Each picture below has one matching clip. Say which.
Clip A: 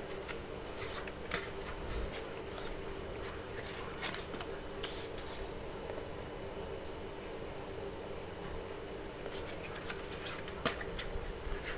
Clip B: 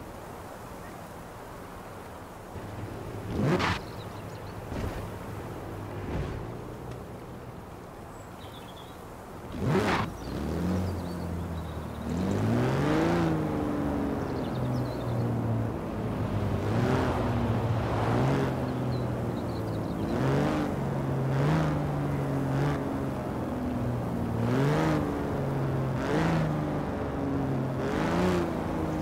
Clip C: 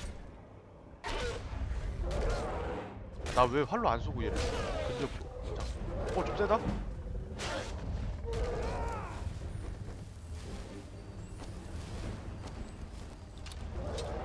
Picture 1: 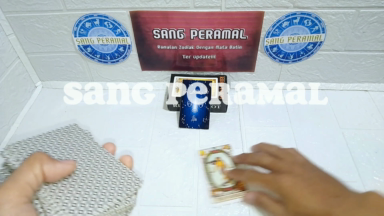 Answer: A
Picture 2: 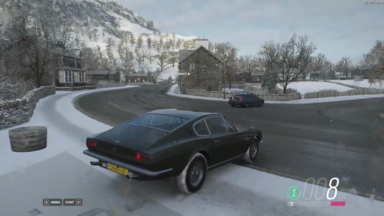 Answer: B